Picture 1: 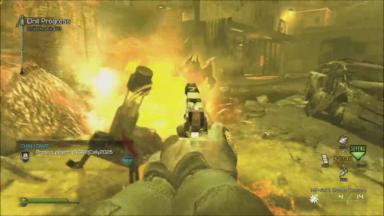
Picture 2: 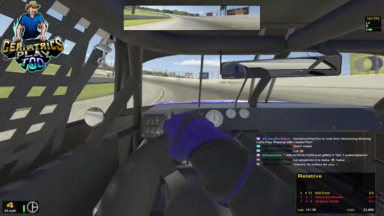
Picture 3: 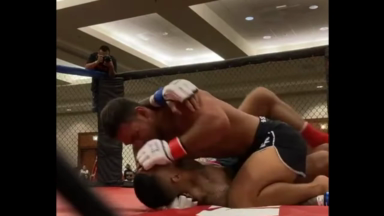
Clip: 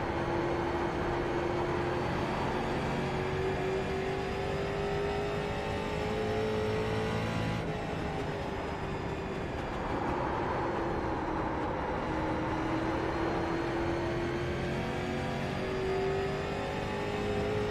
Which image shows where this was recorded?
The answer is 2